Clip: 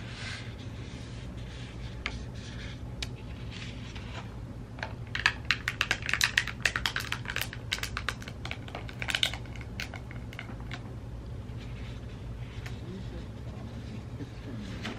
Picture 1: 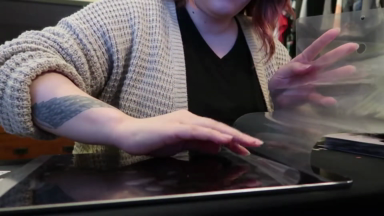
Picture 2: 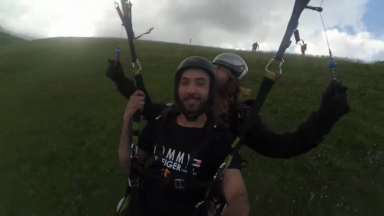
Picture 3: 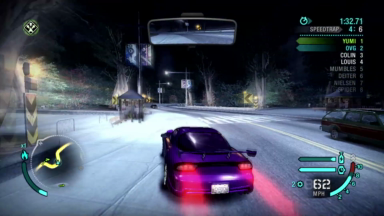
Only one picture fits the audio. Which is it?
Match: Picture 1